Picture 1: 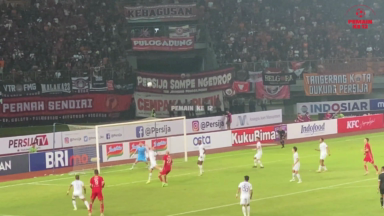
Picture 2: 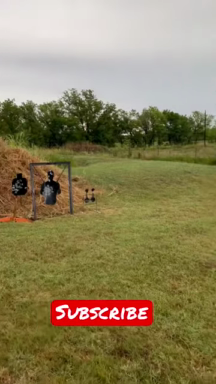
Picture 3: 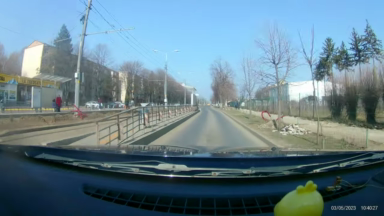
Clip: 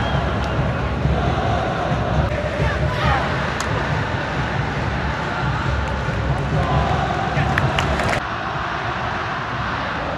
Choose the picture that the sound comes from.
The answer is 1